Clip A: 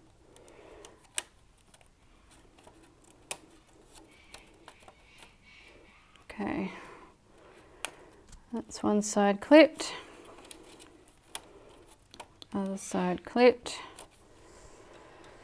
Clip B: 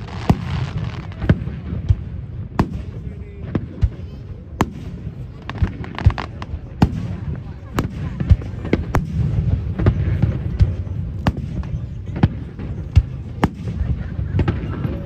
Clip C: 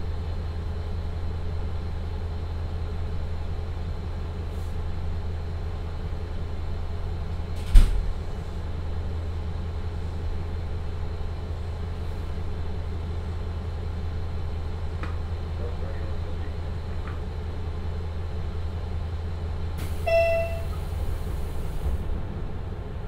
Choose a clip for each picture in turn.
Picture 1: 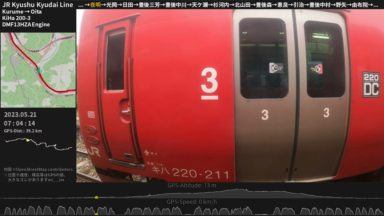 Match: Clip C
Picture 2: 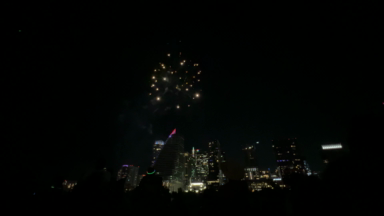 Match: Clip B